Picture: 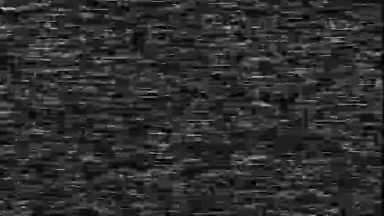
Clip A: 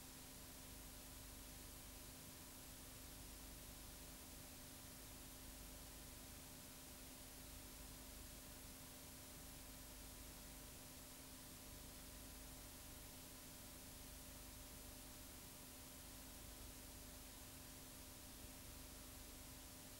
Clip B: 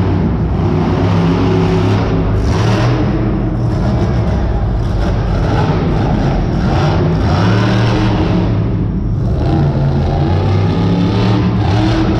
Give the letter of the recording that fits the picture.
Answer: A